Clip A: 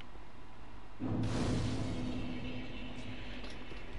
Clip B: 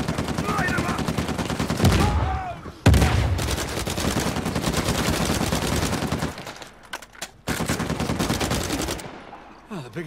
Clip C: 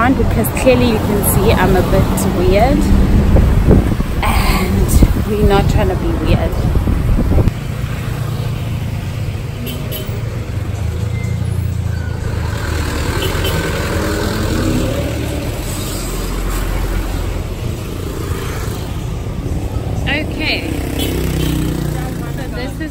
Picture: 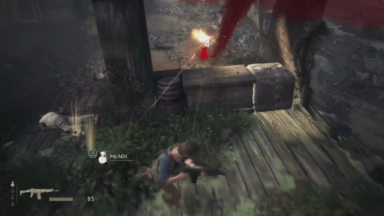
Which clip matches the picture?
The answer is B